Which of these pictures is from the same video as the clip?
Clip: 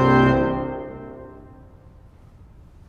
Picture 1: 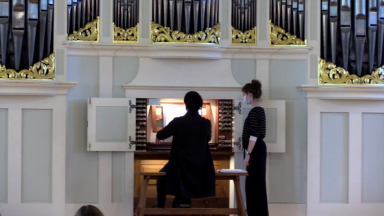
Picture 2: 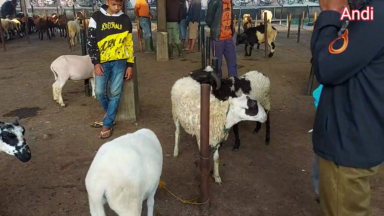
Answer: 1